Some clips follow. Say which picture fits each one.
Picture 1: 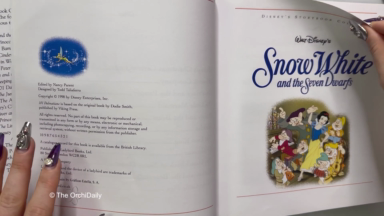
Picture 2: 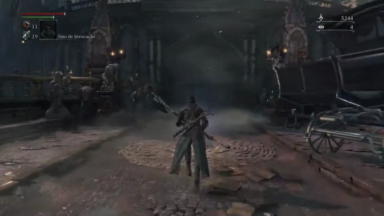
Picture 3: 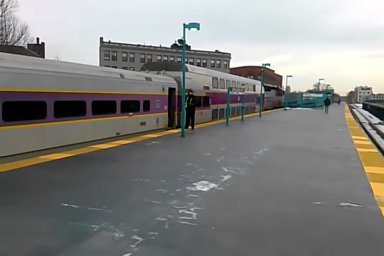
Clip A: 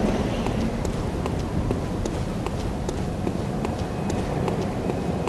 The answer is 2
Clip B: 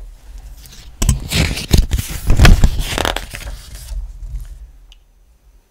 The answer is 1